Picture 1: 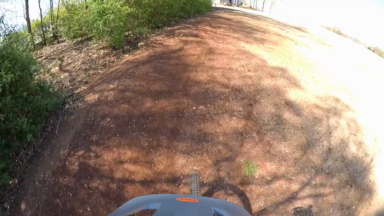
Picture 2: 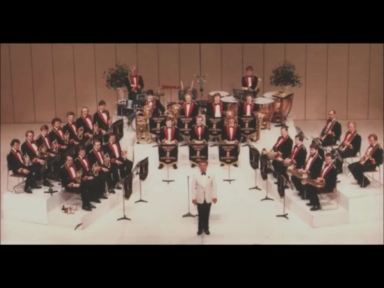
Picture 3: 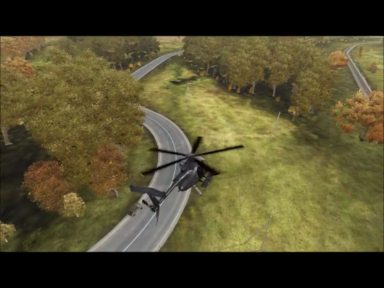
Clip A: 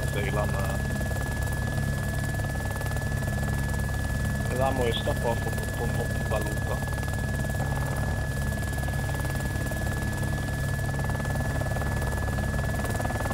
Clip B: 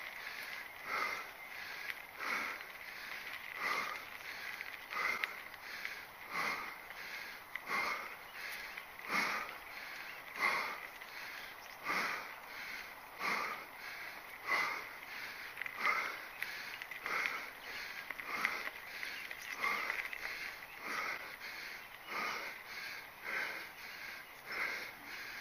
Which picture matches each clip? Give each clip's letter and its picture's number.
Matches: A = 3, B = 1